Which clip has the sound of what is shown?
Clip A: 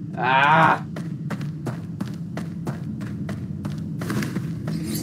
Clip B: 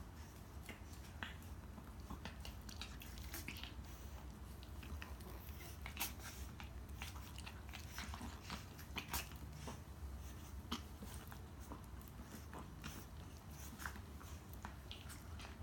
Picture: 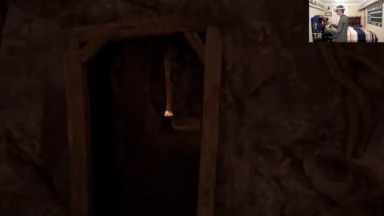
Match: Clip A